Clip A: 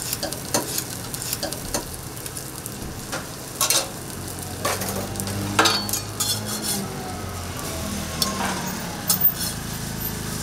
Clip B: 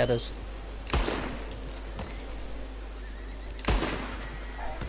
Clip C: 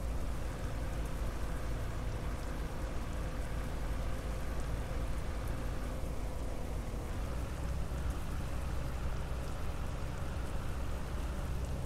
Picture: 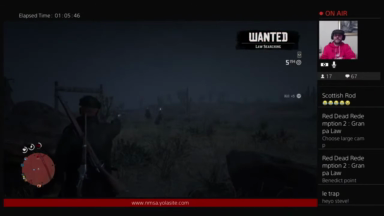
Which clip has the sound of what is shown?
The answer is B